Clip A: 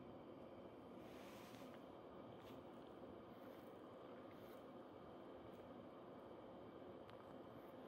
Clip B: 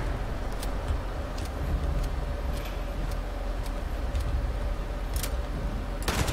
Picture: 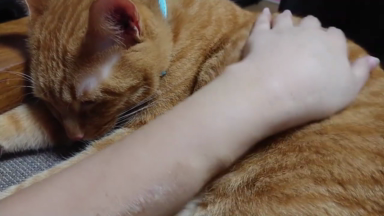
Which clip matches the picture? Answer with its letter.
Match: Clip A